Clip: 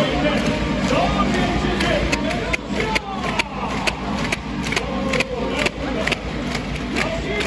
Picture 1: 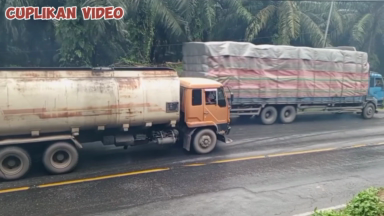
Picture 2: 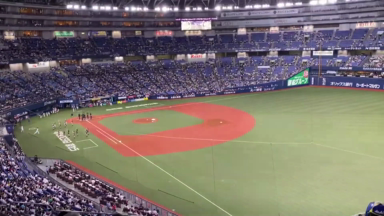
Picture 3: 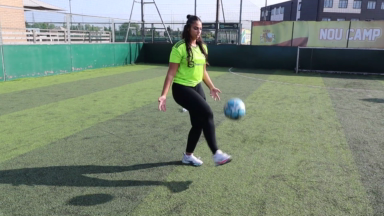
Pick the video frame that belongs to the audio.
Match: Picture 2